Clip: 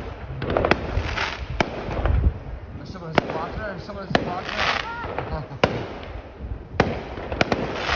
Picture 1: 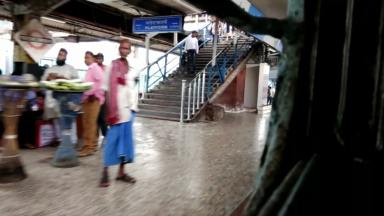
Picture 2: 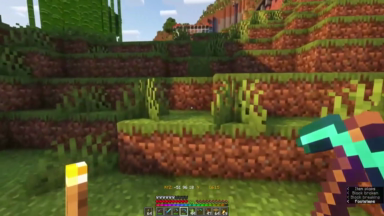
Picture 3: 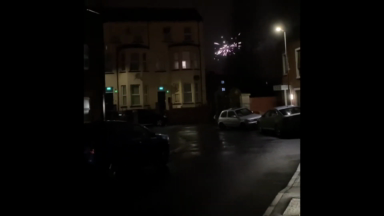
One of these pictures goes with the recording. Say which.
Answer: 3